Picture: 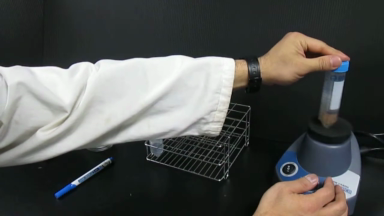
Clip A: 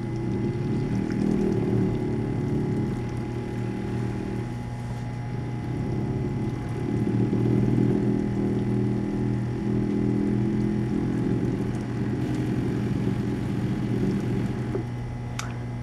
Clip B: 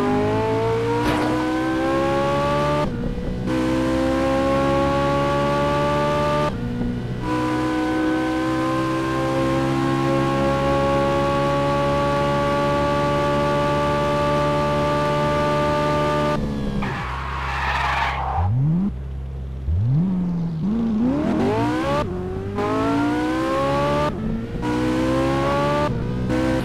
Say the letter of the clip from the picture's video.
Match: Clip A